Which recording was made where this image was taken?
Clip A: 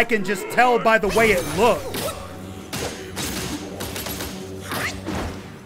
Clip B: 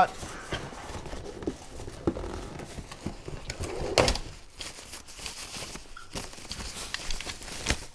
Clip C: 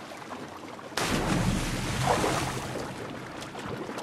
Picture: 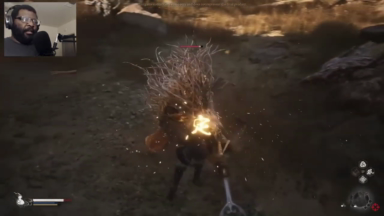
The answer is A